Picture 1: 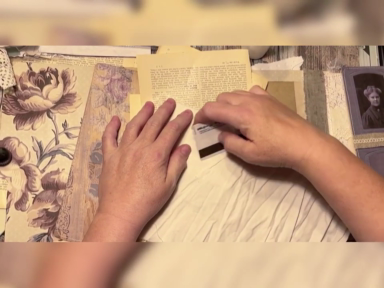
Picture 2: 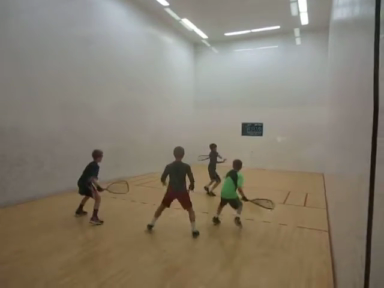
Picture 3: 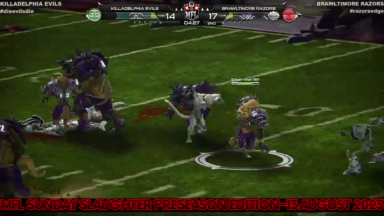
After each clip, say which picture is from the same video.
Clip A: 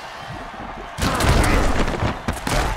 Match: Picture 3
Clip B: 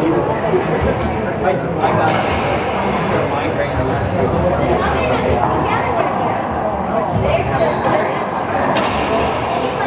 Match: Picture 2